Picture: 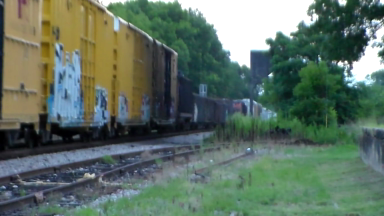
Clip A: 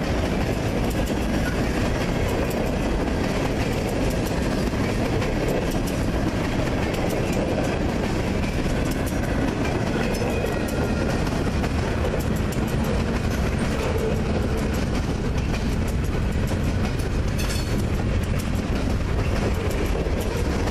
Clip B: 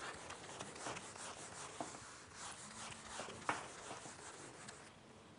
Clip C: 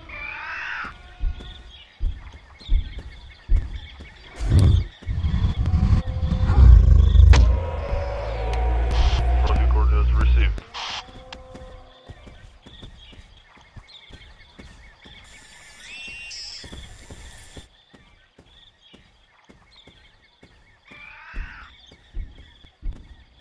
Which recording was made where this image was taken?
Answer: A